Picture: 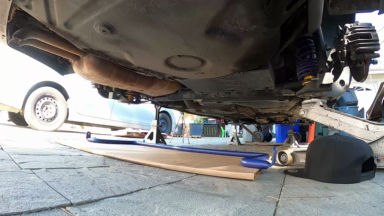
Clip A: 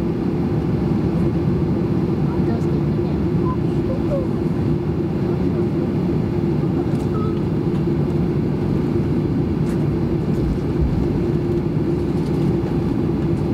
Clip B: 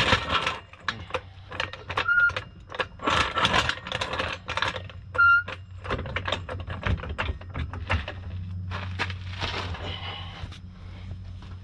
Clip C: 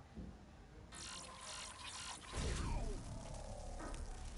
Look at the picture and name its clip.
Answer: B